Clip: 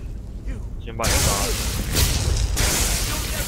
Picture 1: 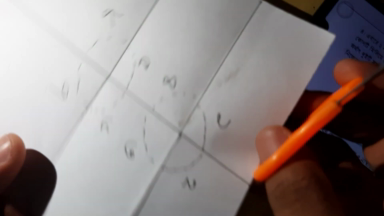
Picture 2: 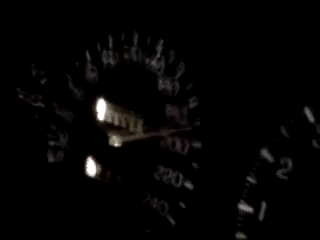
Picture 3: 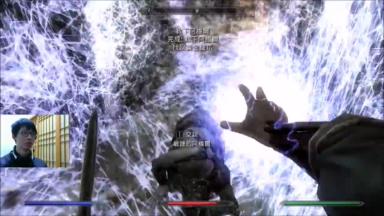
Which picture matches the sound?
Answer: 3